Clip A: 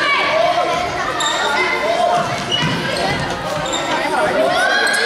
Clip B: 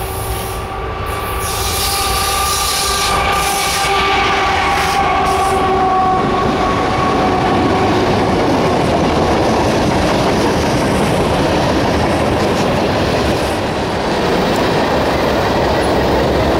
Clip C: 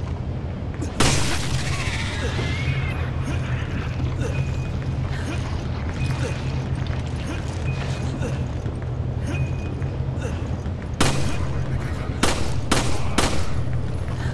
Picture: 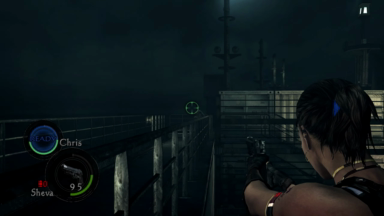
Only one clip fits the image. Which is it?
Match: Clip C